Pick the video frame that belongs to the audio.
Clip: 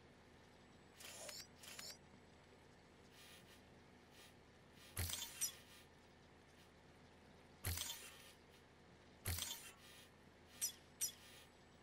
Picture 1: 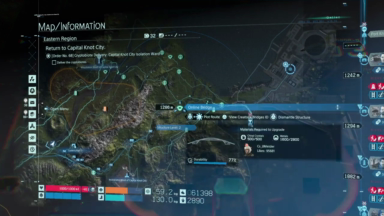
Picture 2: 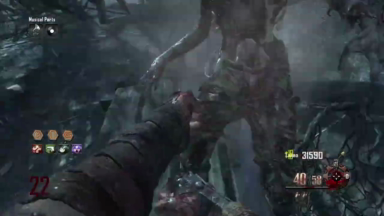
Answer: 1